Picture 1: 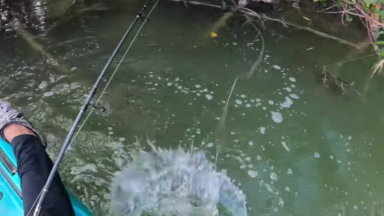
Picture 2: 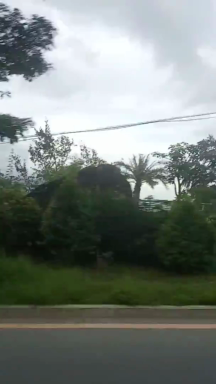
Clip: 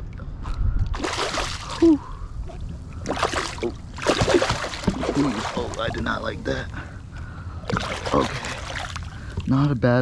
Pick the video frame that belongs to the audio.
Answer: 1